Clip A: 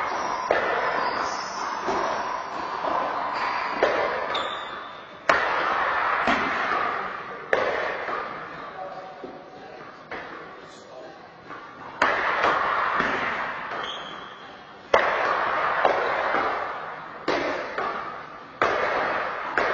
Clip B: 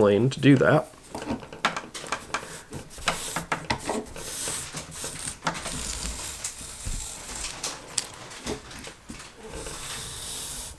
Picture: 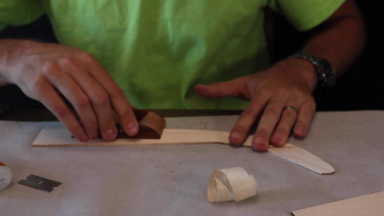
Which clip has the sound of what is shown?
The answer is B